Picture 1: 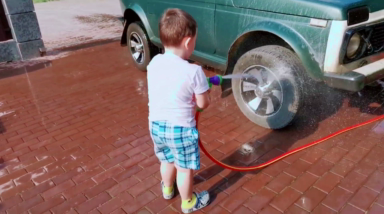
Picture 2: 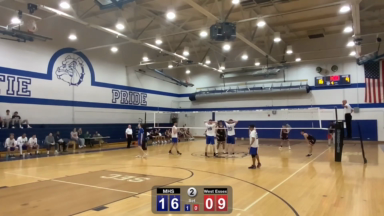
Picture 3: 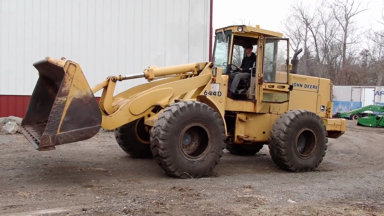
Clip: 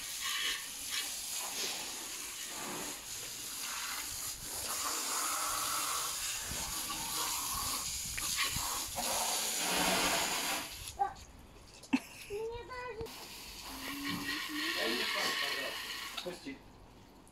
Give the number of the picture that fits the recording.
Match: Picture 1